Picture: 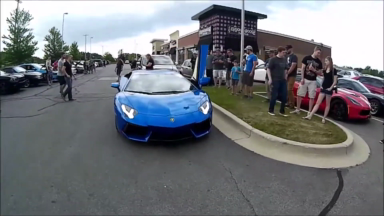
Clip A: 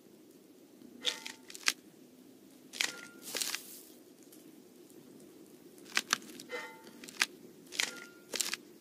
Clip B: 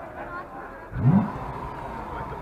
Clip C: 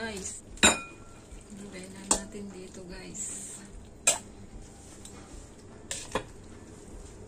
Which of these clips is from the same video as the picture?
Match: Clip B